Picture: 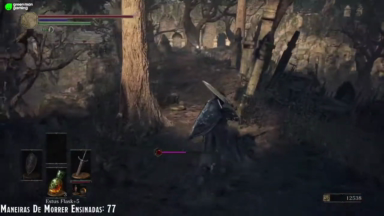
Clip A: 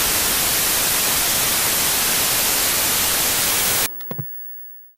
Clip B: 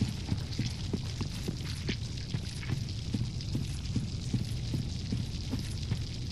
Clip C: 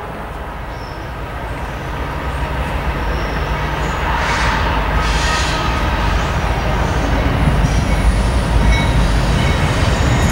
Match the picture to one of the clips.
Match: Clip B